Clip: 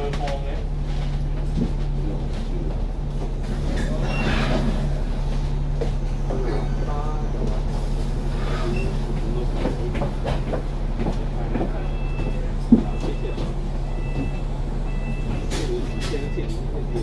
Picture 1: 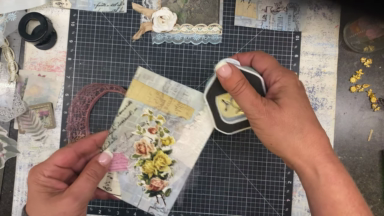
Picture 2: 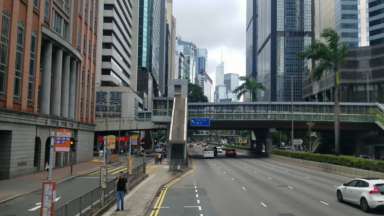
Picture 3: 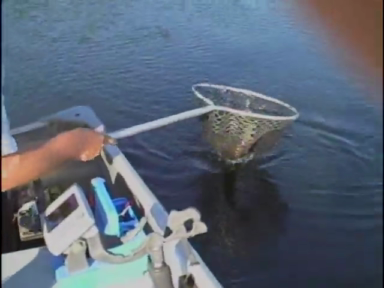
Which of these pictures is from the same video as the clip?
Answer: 2